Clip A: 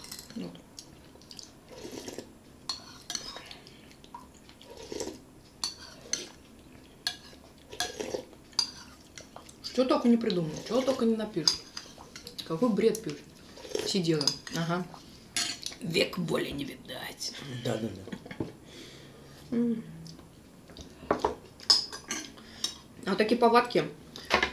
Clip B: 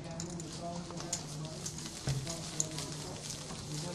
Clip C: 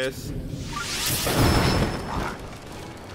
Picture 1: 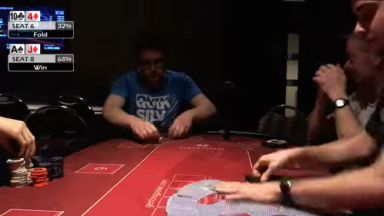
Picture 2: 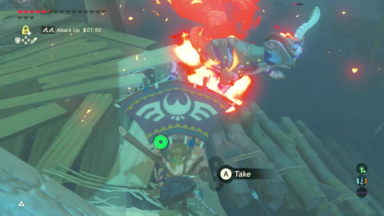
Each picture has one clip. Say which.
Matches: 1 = B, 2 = C